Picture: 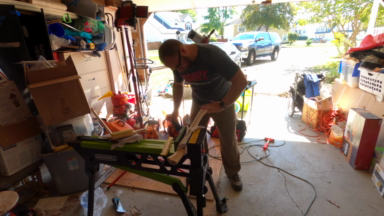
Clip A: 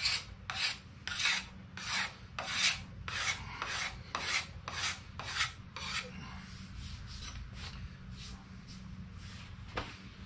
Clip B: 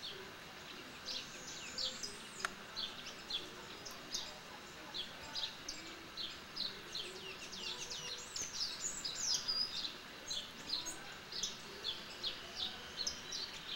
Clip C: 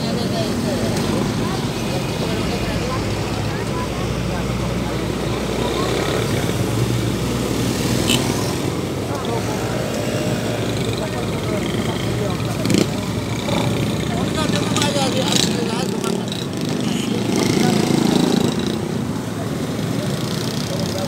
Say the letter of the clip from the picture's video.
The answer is A